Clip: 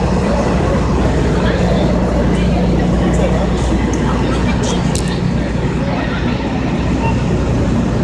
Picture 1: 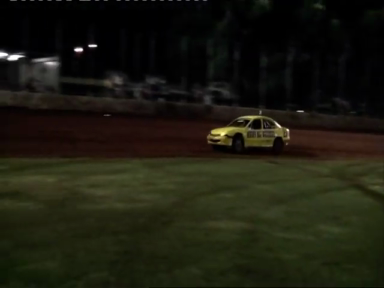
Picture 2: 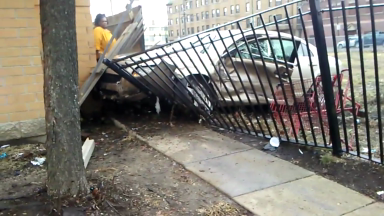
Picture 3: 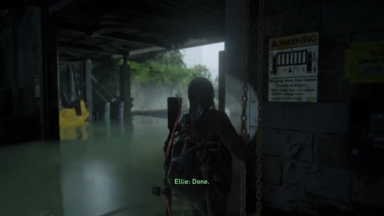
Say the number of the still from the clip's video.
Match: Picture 2